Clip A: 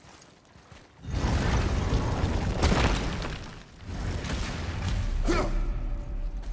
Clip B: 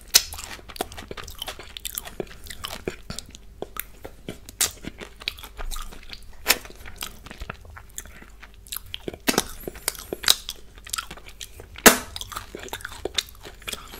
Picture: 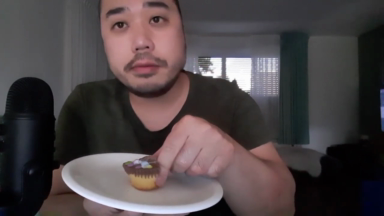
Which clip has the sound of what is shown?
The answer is B